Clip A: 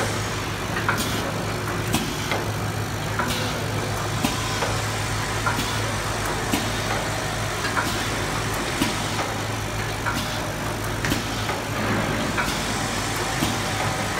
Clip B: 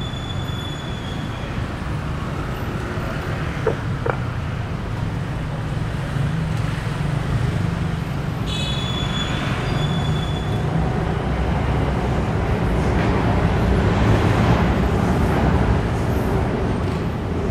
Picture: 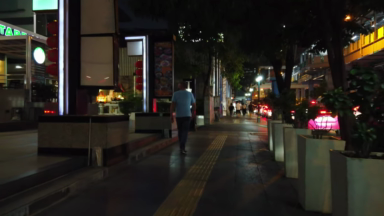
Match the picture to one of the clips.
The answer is B